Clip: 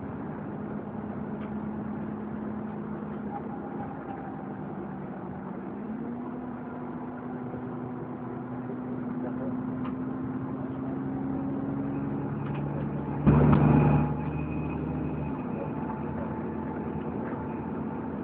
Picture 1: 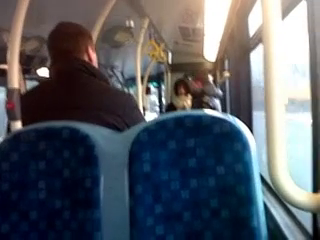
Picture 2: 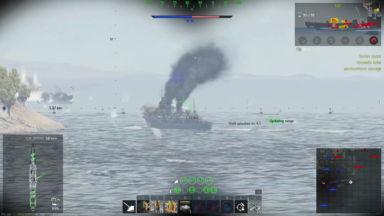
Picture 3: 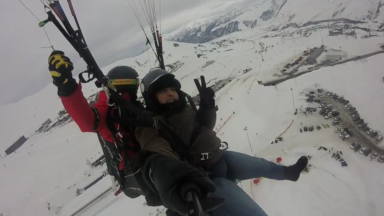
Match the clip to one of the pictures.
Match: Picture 1